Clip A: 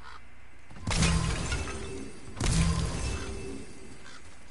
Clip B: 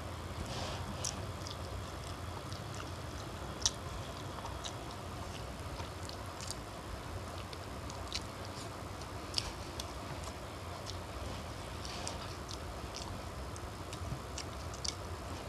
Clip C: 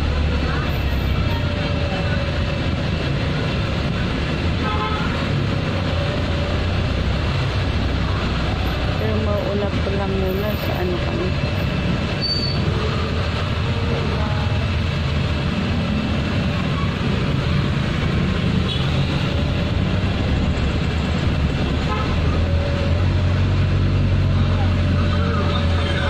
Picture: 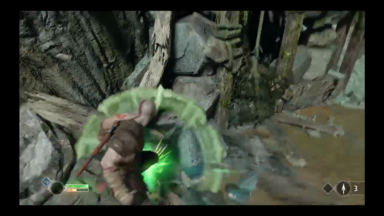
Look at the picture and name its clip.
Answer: A